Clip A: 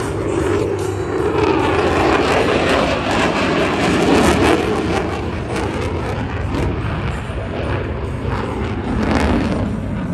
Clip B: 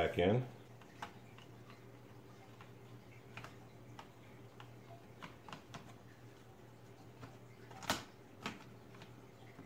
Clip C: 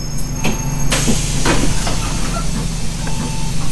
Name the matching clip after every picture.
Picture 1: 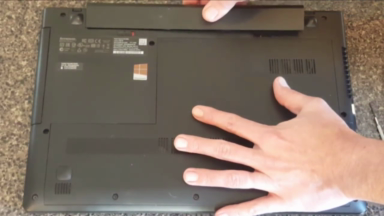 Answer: B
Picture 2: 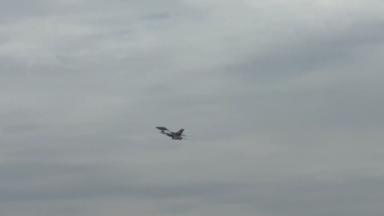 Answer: A